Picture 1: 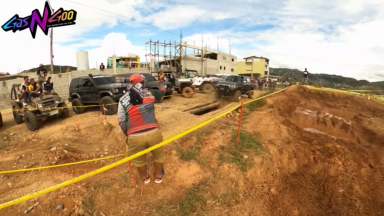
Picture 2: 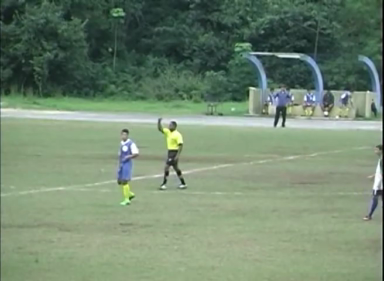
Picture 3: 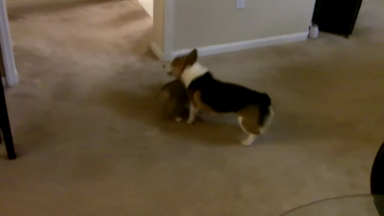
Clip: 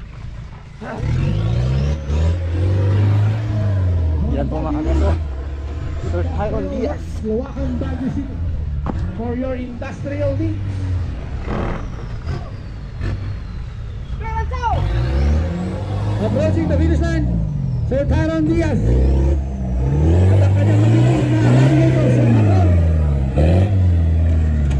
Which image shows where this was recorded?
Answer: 1